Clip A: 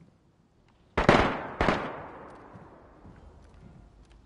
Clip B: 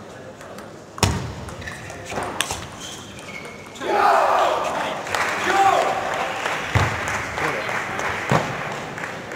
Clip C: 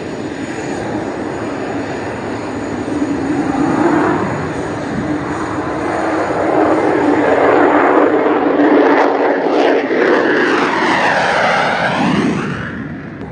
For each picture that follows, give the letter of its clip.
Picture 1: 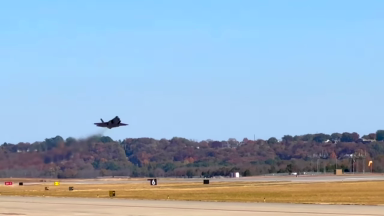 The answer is C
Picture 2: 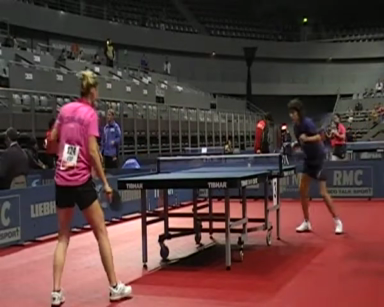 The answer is B